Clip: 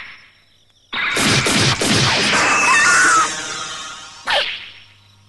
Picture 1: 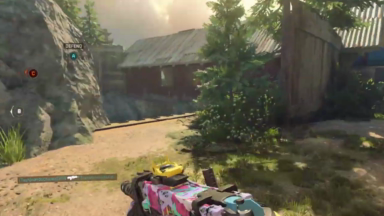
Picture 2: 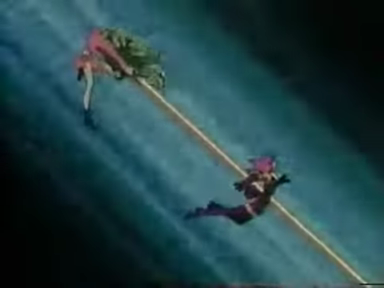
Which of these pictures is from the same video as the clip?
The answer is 2